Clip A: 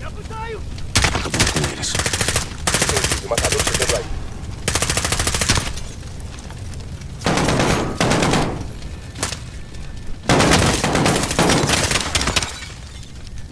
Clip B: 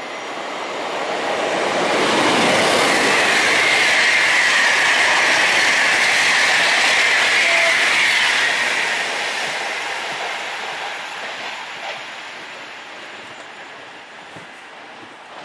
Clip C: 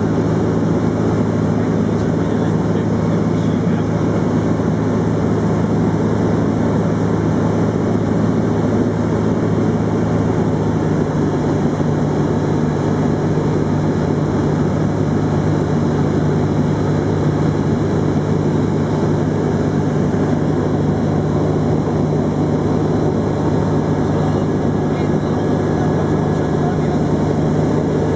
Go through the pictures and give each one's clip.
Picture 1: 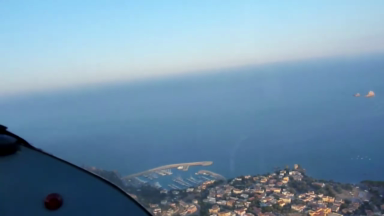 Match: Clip C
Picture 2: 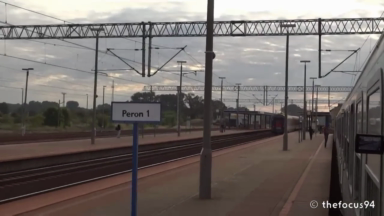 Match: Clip B